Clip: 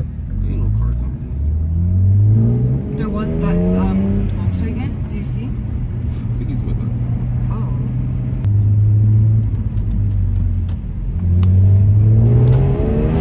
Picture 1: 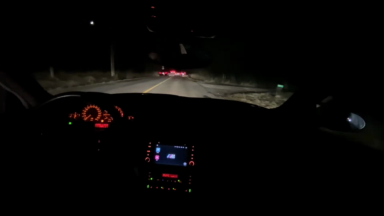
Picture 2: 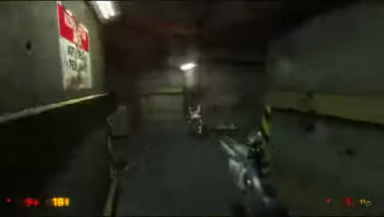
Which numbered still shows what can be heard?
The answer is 1